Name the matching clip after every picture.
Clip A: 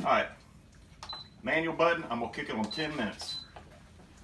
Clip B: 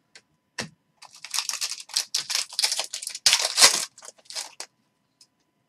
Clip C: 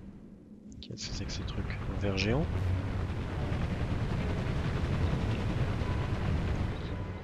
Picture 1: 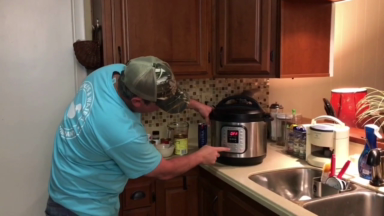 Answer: A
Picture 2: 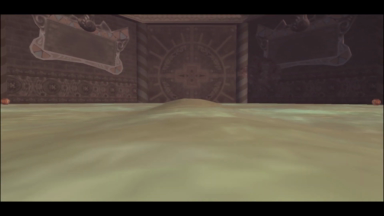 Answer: C